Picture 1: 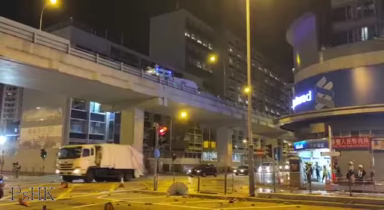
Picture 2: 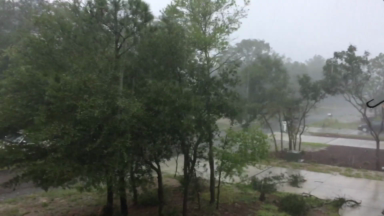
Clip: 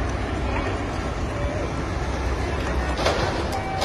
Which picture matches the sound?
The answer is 1